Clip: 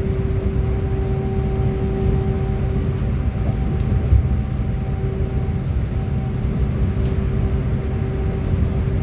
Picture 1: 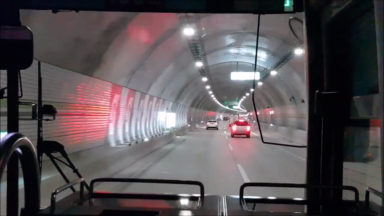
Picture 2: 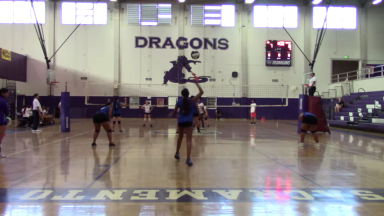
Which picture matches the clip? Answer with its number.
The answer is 1